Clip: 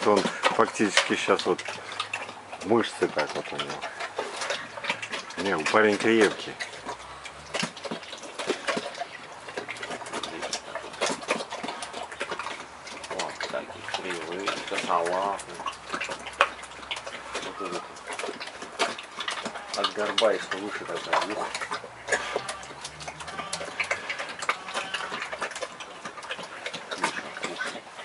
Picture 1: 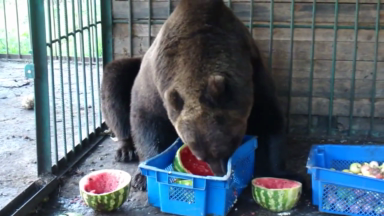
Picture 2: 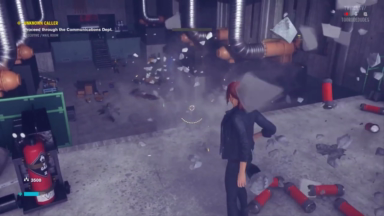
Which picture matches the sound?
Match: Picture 1